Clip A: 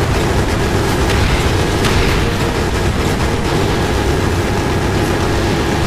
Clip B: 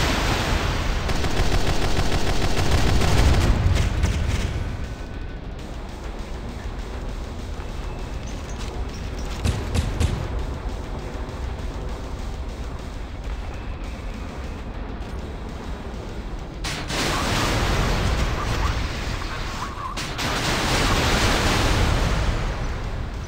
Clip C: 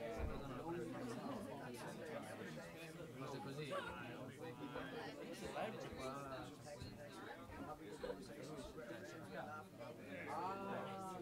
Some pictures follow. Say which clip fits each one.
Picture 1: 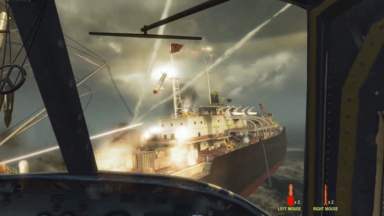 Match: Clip A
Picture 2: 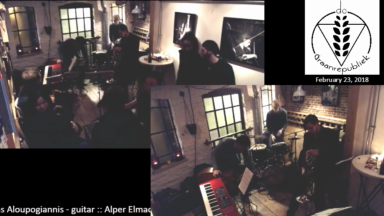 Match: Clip C